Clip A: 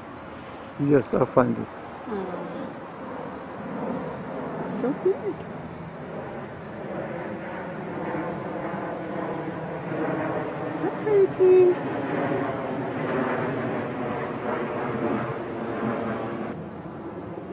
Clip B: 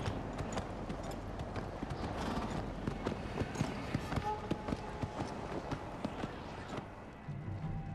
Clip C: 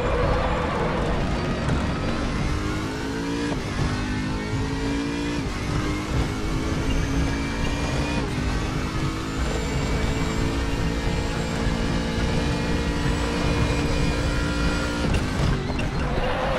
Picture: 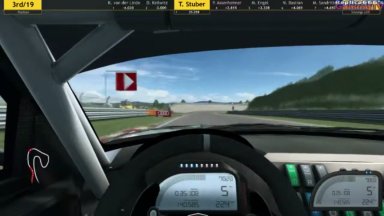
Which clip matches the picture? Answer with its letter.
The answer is C